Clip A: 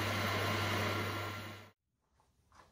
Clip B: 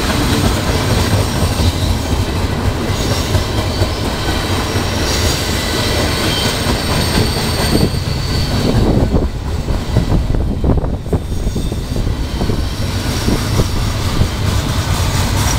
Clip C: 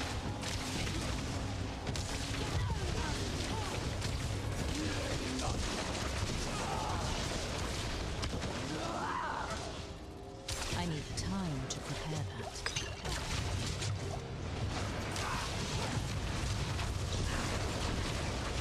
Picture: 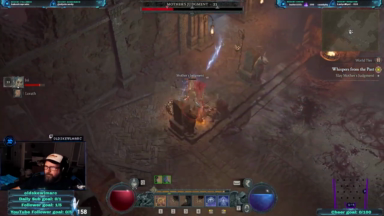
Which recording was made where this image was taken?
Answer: C